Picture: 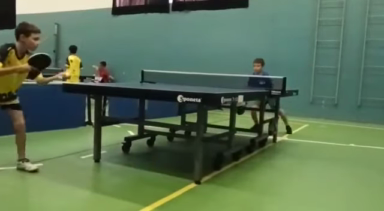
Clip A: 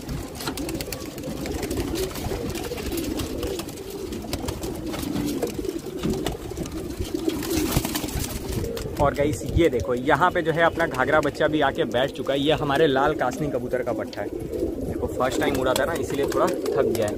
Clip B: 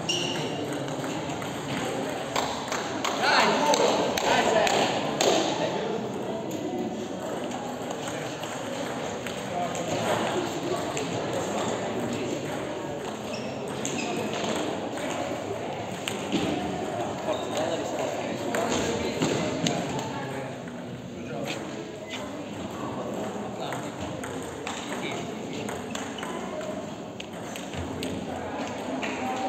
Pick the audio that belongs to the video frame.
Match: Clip B